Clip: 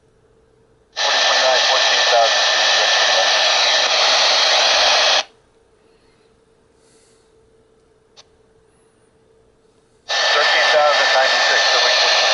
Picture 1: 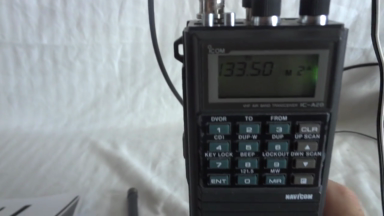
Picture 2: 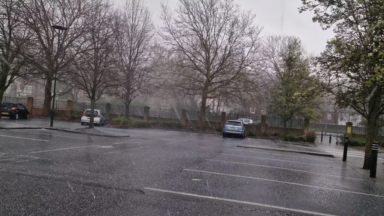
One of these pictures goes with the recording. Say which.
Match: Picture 1